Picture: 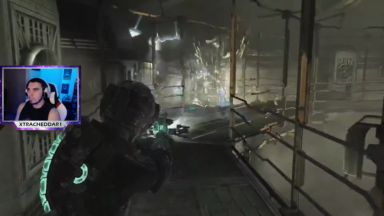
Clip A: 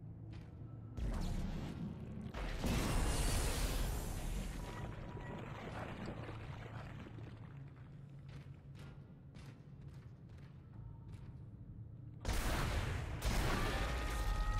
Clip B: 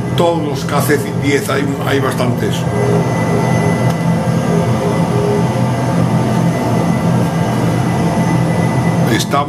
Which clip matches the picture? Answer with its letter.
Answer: A